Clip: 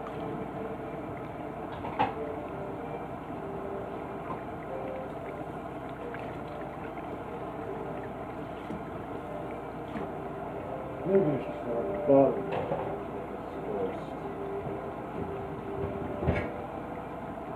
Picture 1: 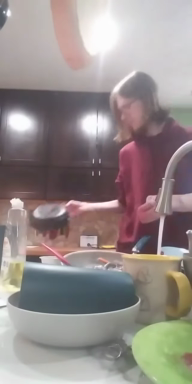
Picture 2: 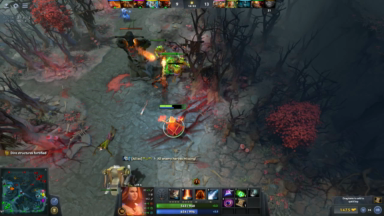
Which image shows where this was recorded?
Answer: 1